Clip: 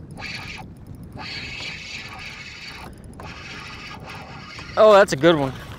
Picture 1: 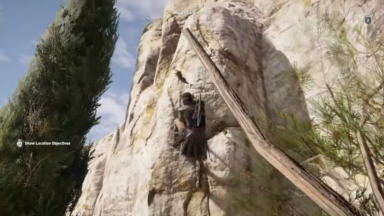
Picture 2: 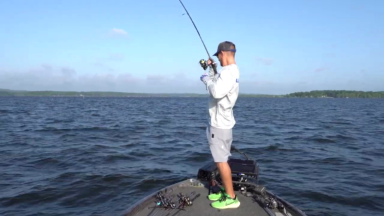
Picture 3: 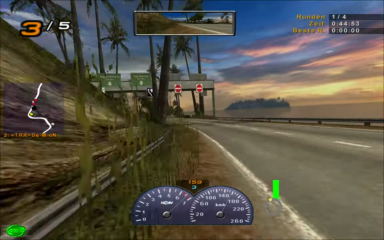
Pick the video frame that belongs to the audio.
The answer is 2